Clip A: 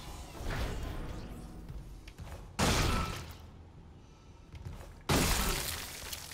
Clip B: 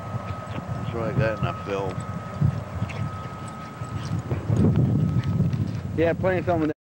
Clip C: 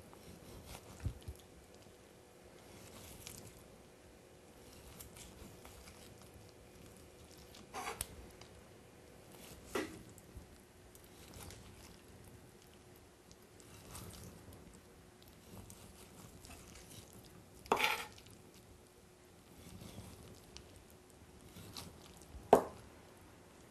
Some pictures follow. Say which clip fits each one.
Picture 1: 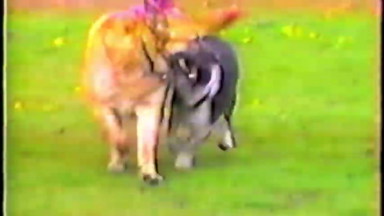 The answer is B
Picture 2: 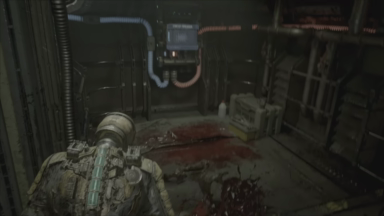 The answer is A